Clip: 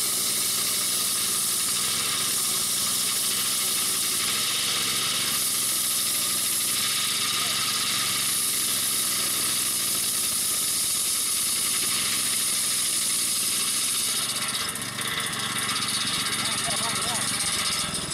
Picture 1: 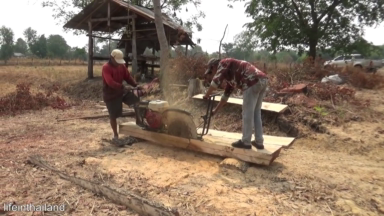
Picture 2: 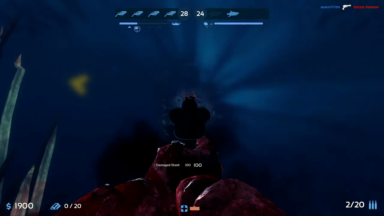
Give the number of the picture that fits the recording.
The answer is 1